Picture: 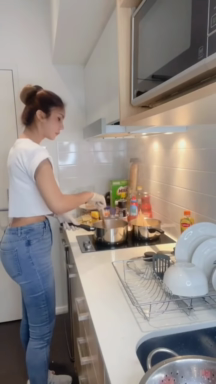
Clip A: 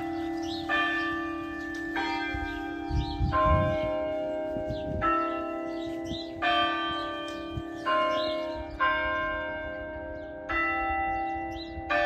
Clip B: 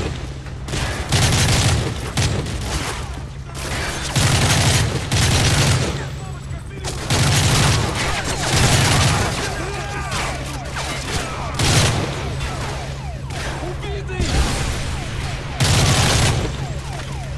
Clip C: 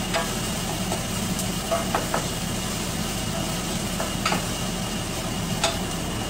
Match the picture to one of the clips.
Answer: C